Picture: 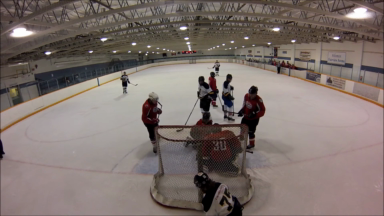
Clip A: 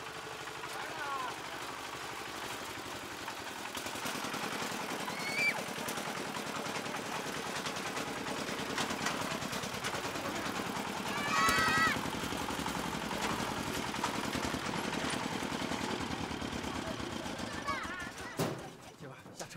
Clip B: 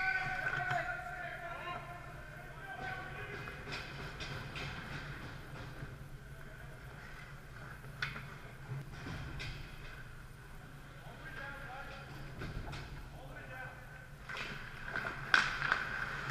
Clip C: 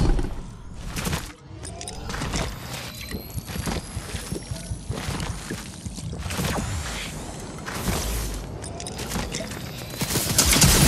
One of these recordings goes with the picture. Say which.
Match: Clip B